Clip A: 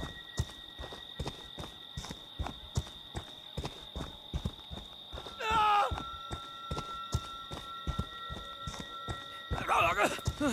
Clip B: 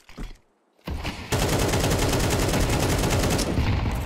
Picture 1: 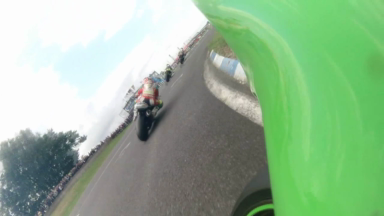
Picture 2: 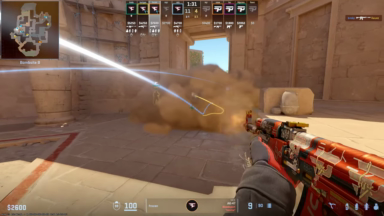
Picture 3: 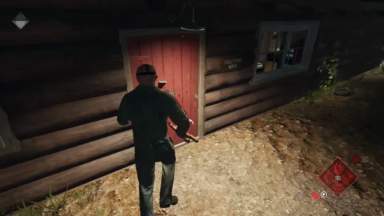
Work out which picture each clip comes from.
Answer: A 3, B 2